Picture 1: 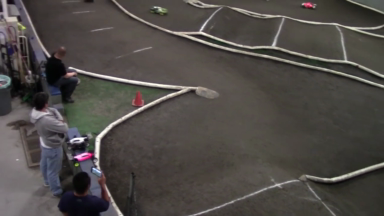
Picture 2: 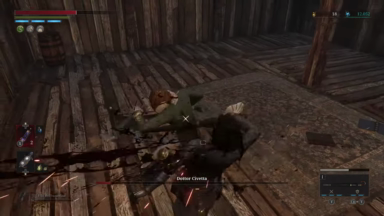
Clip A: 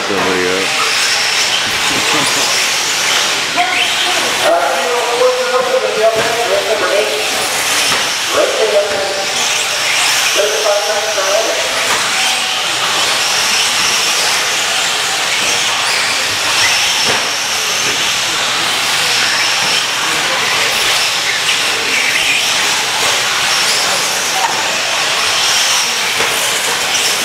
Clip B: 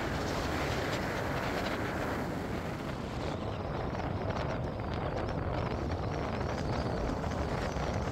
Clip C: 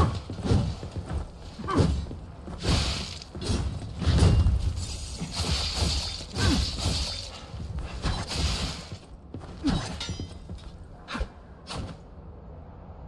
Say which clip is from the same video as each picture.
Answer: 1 A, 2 C